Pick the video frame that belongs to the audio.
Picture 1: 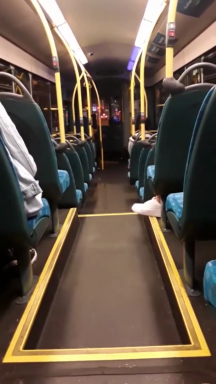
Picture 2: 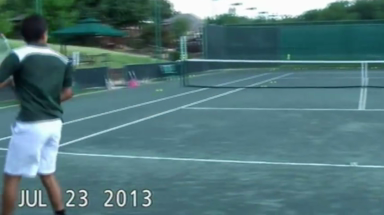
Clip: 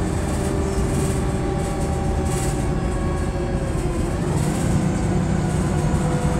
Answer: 1